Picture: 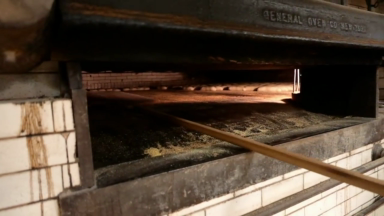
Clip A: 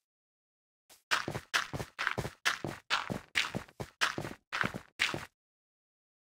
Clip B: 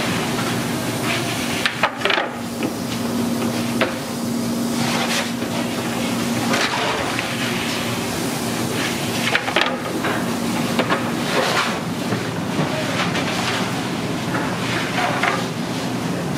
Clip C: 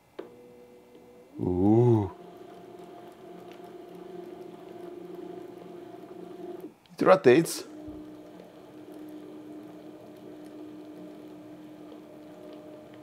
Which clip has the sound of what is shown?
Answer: B